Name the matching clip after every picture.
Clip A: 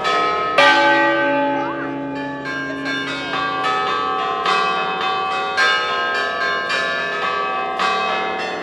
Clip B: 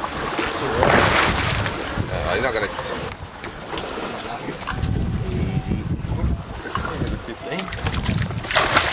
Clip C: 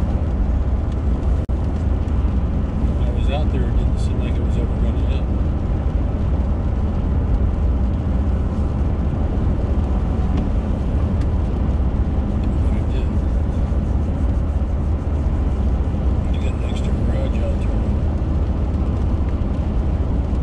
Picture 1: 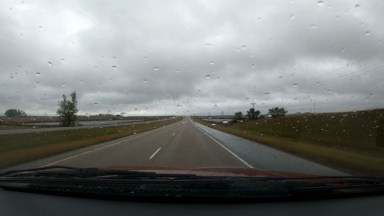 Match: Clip C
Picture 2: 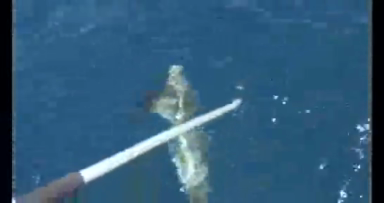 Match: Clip B